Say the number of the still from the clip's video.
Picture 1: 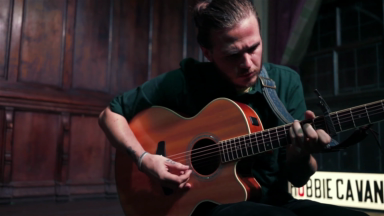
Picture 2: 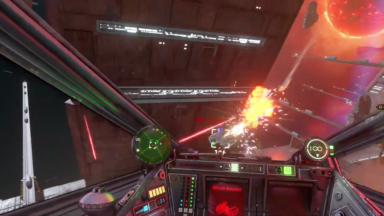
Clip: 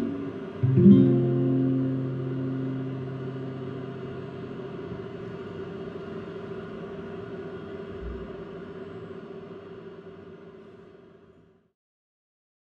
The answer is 1